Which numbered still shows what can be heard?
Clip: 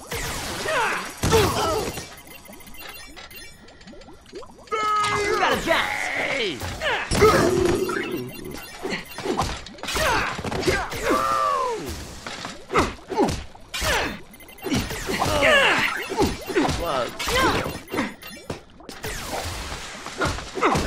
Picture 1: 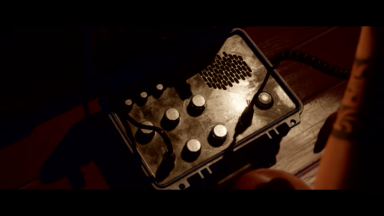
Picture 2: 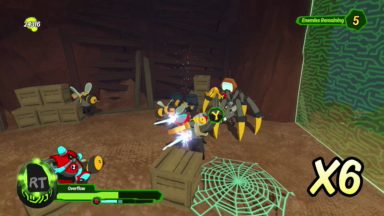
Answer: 2